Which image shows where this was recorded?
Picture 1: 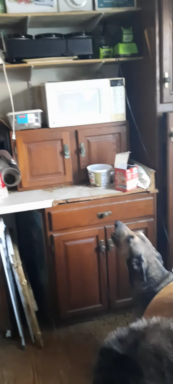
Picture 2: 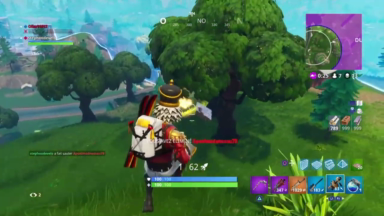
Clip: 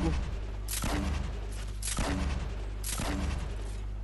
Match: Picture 2